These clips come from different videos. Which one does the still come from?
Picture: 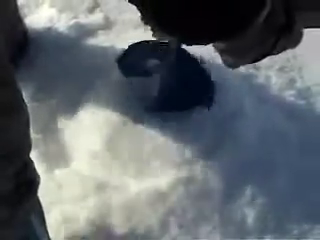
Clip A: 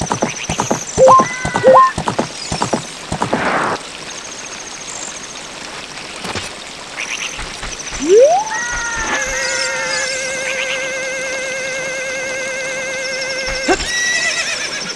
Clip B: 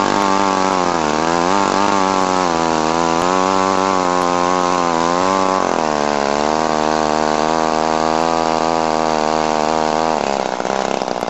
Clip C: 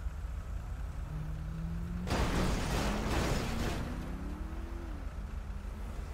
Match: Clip B